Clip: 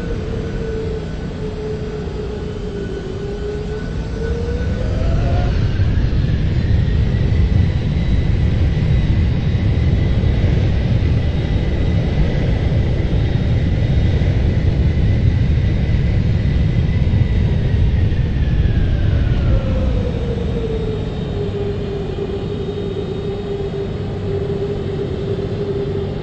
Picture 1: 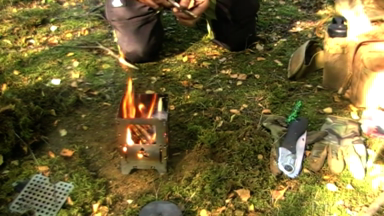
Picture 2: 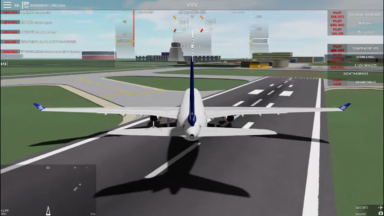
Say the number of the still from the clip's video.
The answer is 2